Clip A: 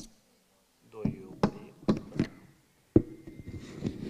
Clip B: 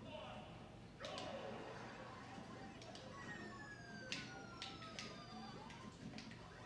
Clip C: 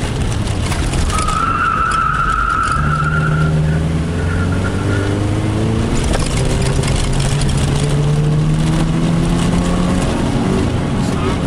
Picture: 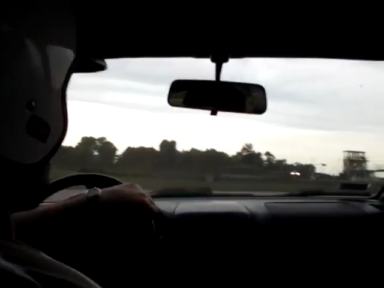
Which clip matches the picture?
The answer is C